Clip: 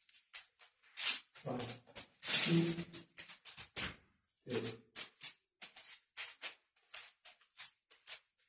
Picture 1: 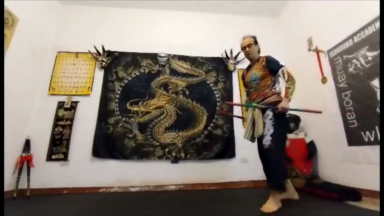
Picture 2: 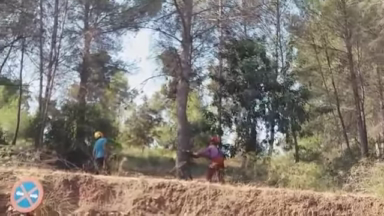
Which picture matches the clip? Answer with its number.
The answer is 1